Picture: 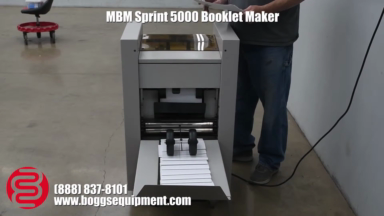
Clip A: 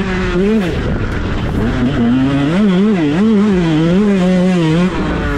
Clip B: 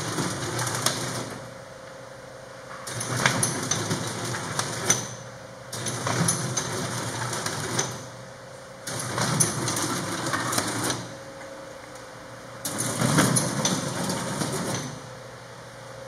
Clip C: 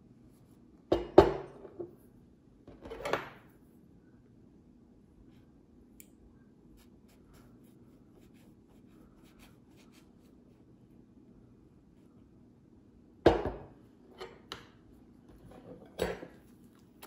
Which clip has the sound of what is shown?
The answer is B